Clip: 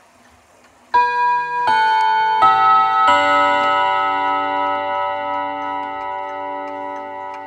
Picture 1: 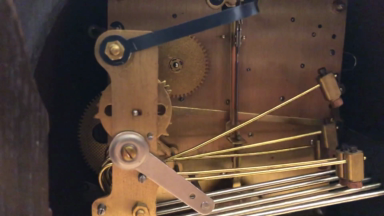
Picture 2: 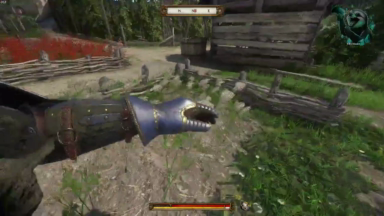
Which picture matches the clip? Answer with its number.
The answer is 1